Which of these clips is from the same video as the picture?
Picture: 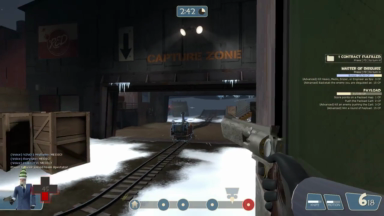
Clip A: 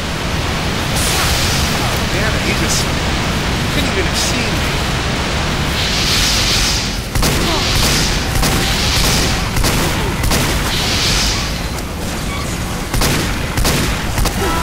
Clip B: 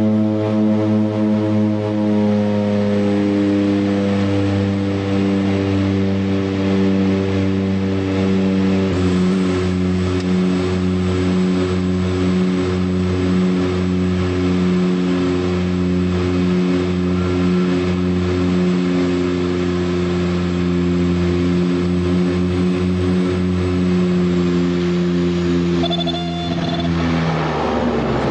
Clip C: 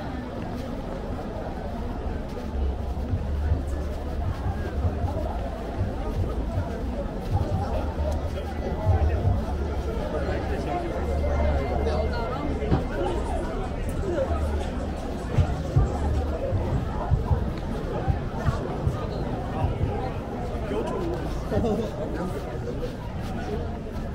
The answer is A